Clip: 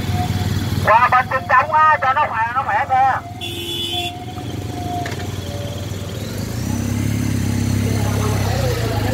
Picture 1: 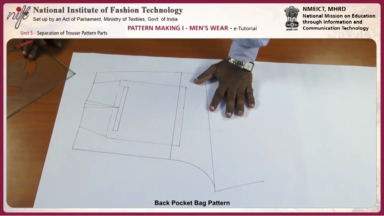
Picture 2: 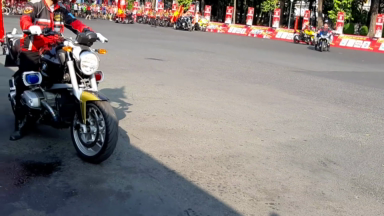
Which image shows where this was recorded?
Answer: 2